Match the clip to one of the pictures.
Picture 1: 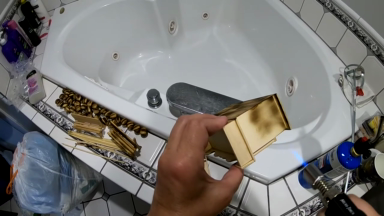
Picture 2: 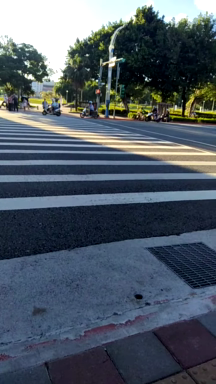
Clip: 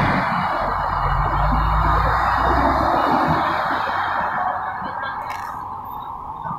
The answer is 2